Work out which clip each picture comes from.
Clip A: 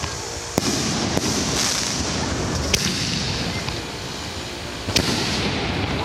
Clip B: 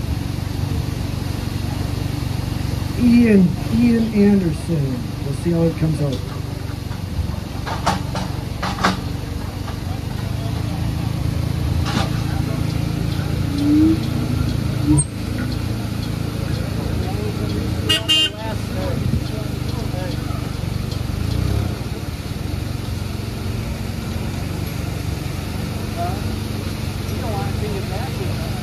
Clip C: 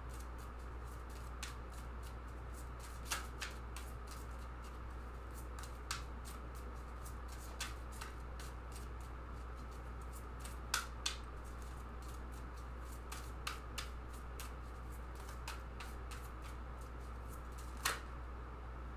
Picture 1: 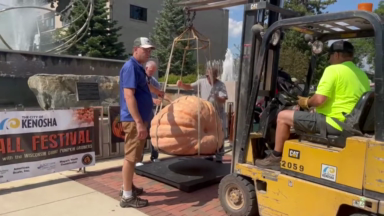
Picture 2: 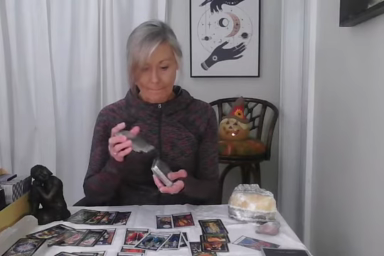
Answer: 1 B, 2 C